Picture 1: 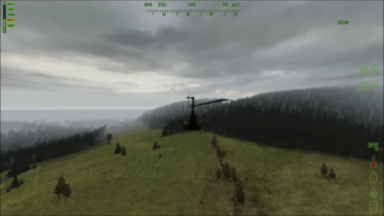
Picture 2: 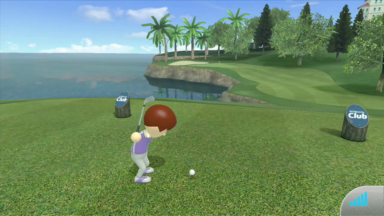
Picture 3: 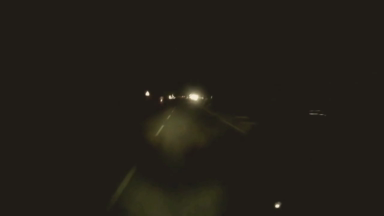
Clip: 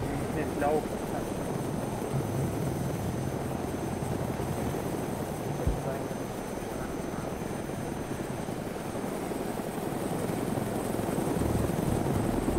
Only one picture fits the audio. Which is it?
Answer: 1